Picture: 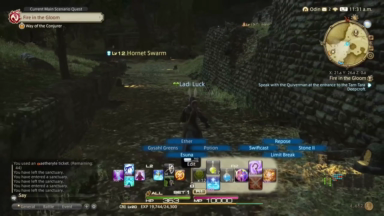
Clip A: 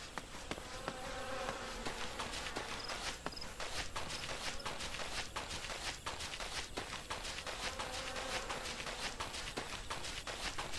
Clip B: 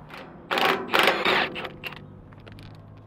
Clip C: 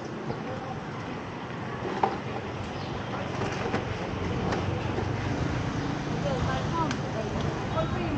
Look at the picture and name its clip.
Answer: A